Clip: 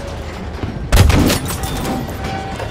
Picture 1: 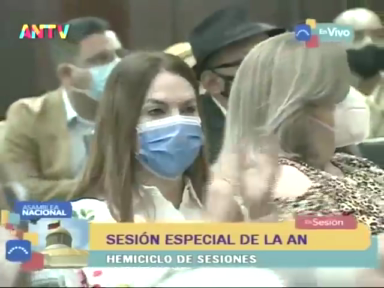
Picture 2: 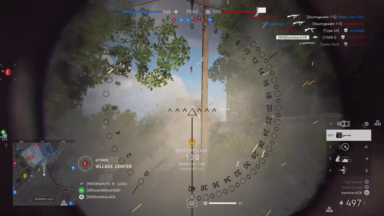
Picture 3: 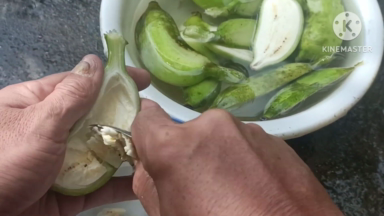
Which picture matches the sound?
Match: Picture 2